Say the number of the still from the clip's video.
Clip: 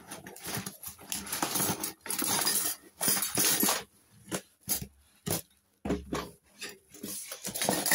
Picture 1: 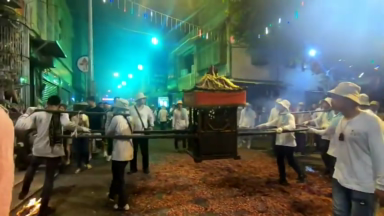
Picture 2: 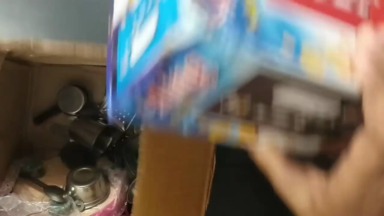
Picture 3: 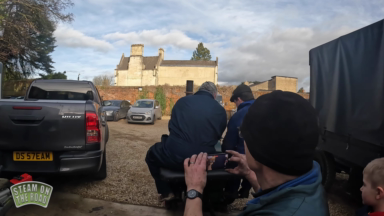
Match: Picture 2